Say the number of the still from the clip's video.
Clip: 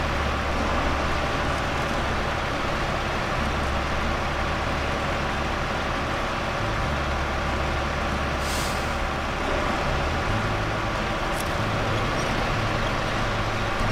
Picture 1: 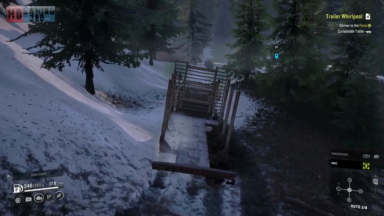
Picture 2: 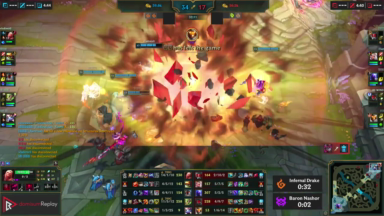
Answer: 1